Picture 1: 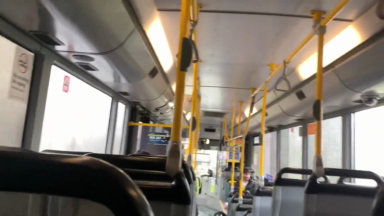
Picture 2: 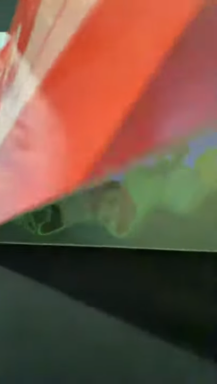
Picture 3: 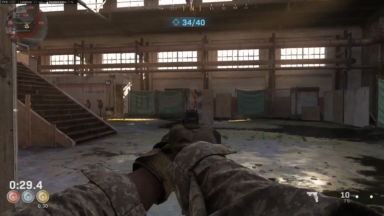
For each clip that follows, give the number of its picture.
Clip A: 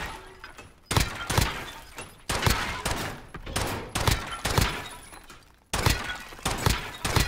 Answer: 3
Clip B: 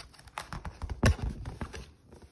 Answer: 2